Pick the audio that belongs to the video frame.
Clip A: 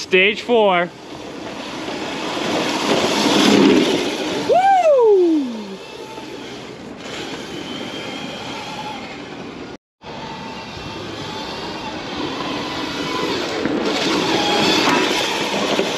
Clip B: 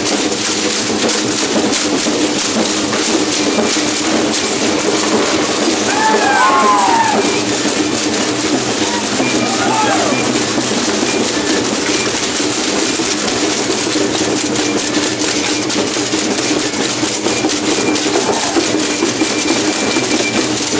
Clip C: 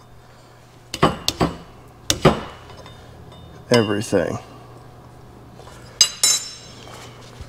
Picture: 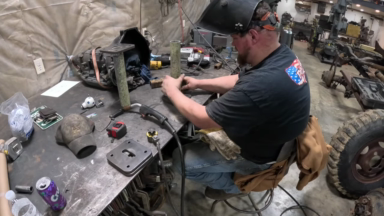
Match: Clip C